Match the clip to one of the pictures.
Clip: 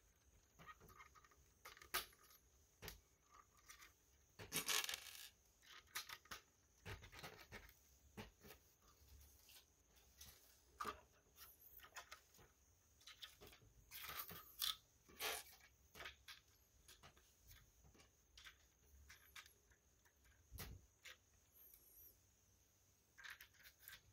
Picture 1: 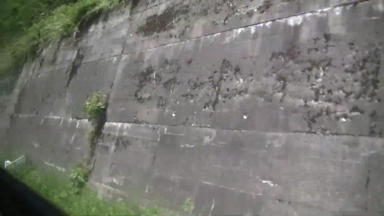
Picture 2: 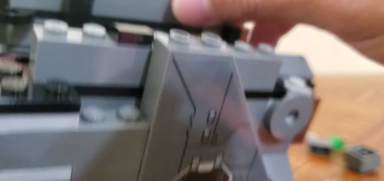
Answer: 2